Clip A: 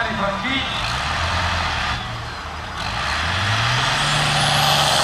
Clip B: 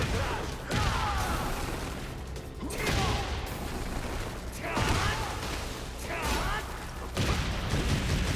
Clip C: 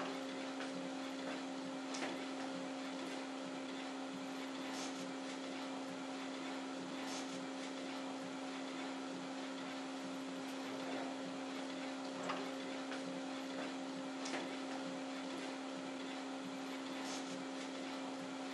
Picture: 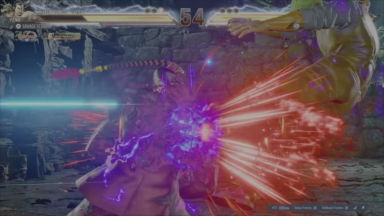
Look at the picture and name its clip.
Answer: B